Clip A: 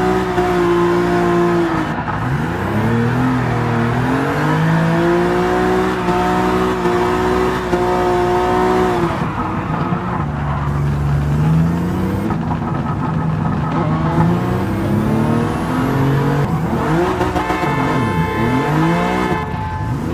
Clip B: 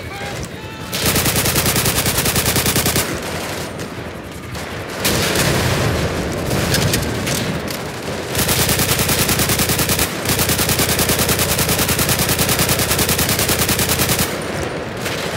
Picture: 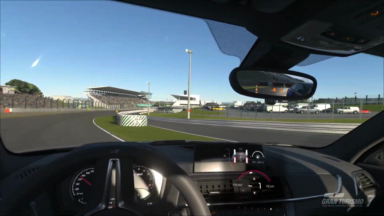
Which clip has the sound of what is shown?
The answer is A